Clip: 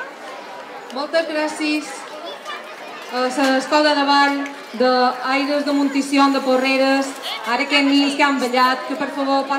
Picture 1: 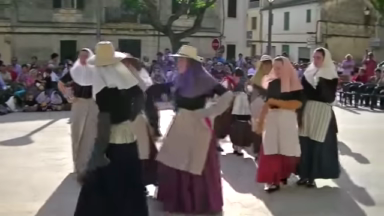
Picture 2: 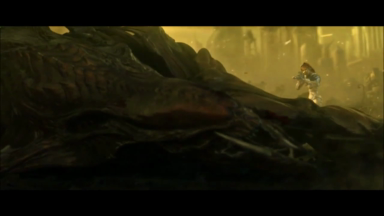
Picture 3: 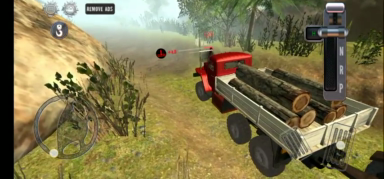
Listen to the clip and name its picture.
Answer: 1